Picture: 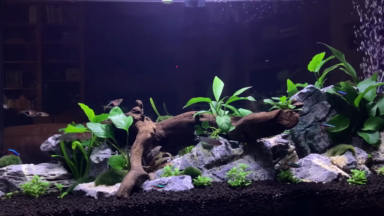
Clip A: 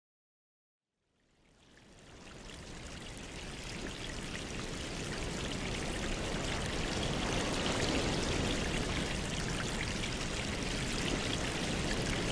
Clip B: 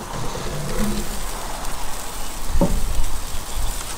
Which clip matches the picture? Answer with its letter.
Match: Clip A